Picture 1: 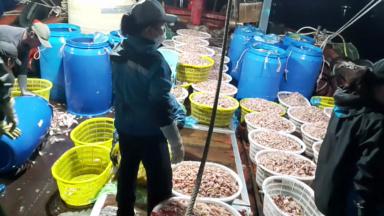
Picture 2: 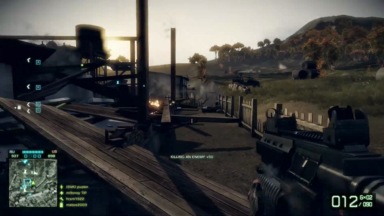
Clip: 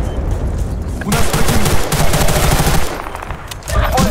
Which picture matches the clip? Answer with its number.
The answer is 2